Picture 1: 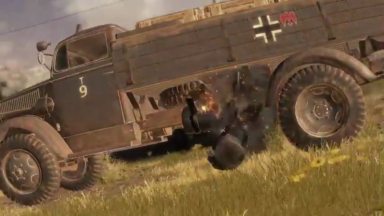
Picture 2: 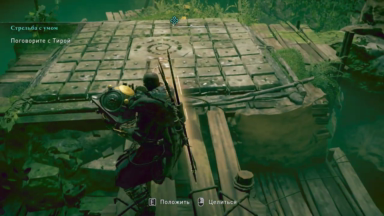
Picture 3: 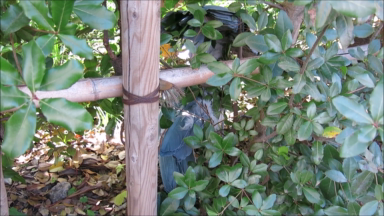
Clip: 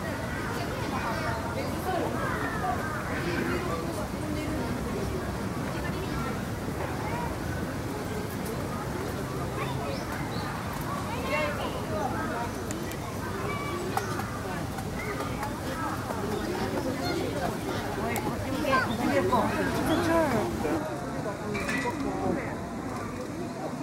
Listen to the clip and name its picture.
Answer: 3